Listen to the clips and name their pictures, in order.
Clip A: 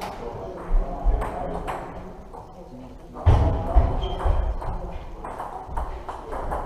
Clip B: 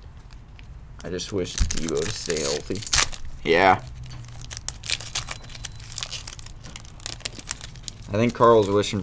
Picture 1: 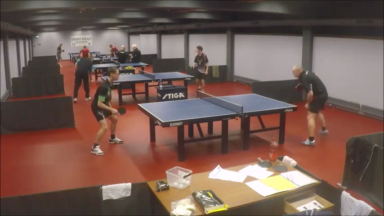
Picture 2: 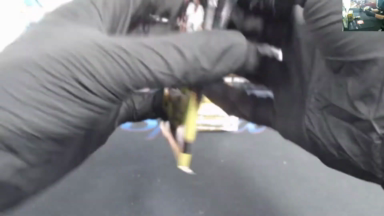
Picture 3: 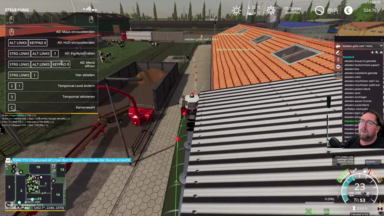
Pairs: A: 1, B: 2